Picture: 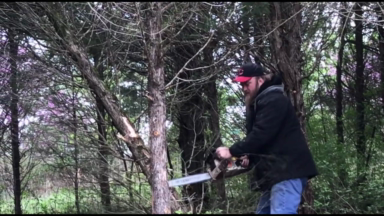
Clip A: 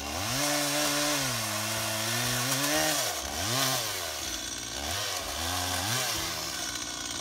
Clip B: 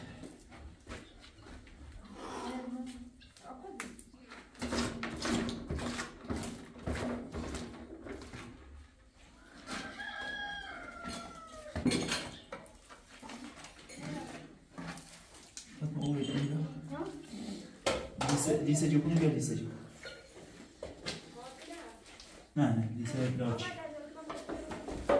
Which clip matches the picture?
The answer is A